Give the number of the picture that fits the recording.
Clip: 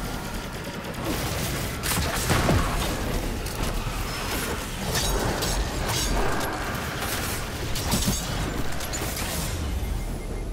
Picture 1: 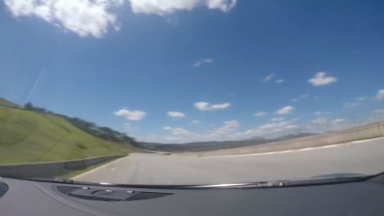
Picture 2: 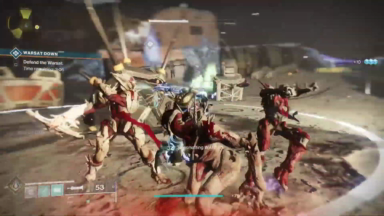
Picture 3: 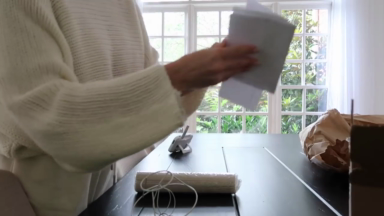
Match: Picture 2